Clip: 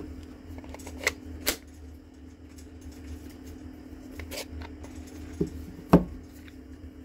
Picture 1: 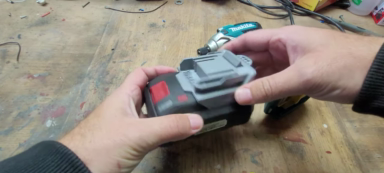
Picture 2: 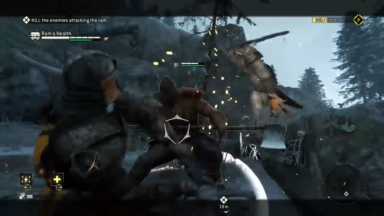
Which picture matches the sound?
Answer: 1